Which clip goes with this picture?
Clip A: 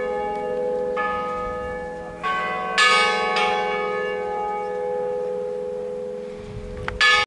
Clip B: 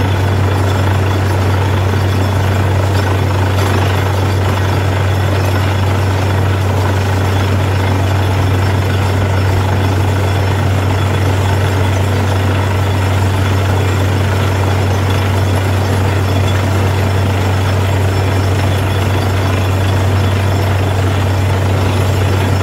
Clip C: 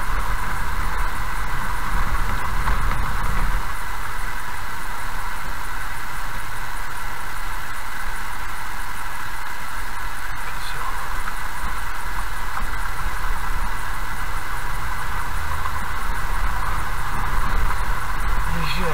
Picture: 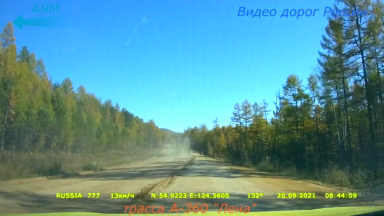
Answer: C